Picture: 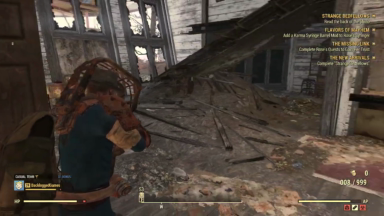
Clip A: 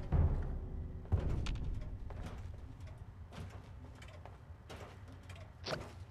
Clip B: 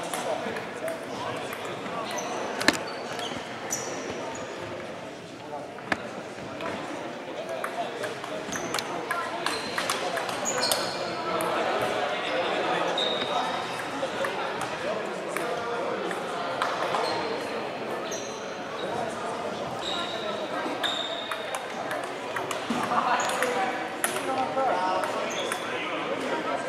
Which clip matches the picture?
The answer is A